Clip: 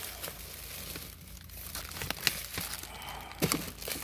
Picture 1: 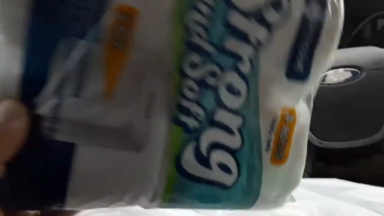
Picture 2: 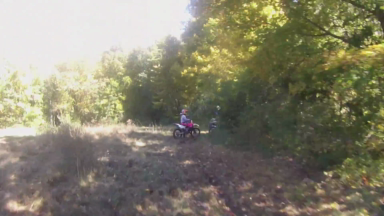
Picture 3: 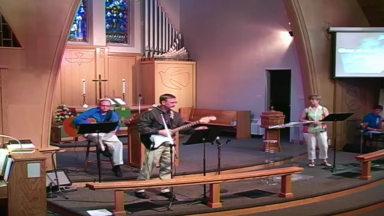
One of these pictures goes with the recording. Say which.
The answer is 1